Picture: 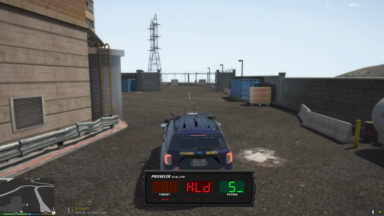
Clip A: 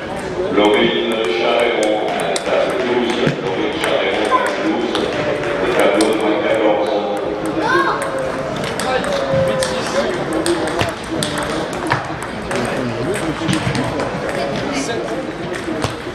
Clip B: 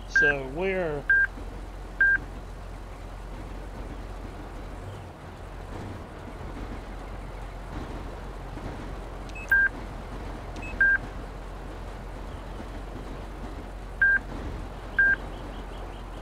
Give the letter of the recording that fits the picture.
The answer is B